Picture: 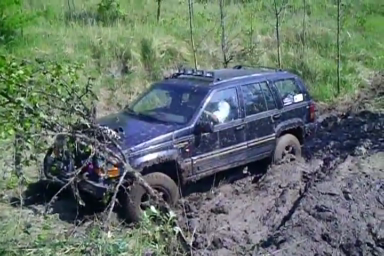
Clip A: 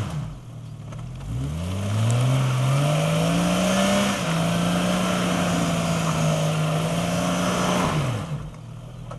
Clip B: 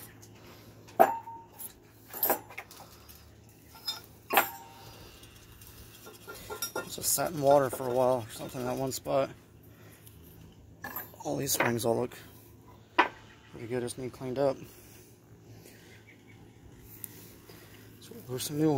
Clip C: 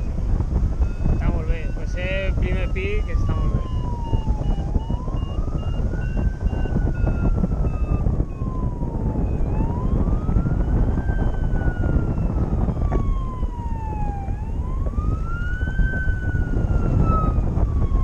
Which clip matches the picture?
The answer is A